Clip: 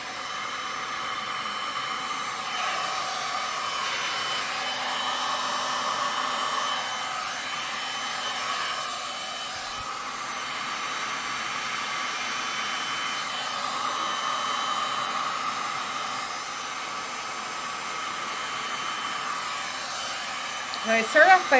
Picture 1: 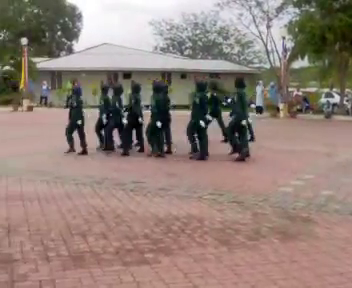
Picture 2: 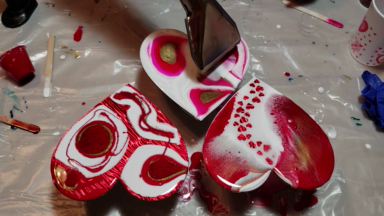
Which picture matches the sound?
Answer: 2